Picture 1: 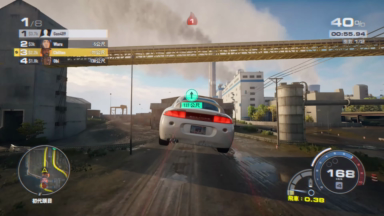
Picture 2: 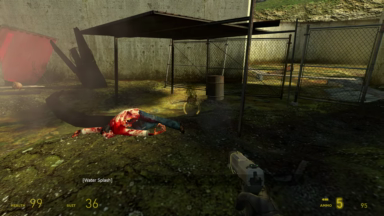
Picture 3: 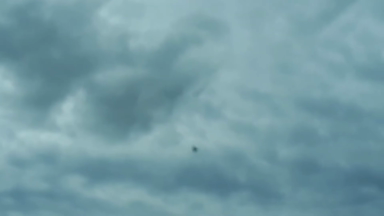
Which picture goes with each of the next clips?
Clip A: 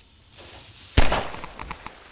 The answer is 2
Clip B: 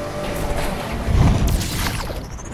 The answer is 1